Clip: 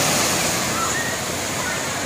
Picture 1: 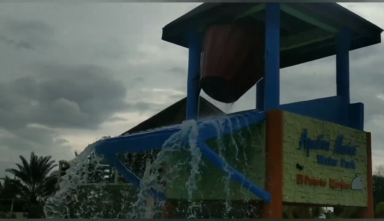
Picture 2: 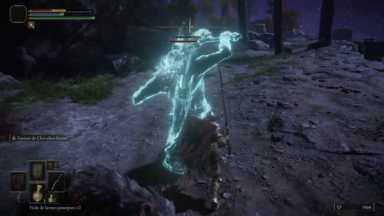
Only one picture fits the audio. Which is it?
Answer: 1